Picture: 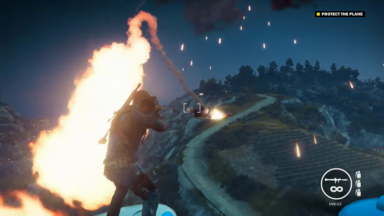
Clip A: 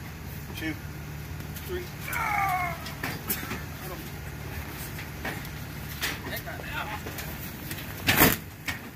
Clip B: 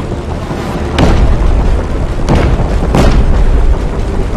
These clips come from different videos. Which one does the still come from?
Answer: B